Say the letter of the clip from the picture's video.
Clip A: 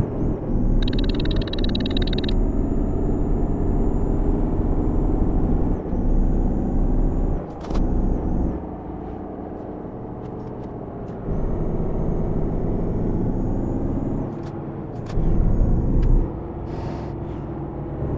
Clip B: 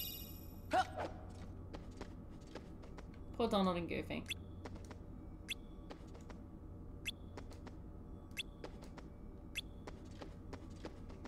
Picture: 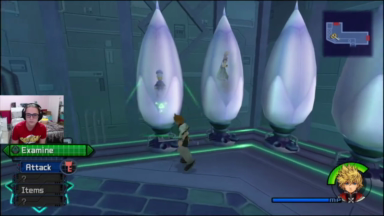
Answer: B